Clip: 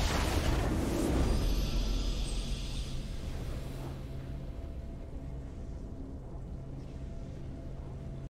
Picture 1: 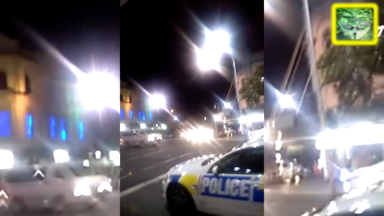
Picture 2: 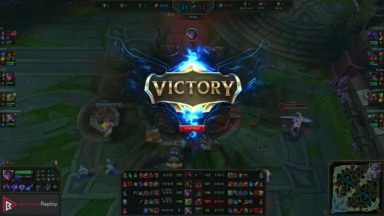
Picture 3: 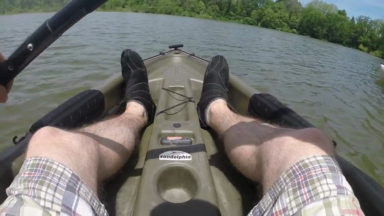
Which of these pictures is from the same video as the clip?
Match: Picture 2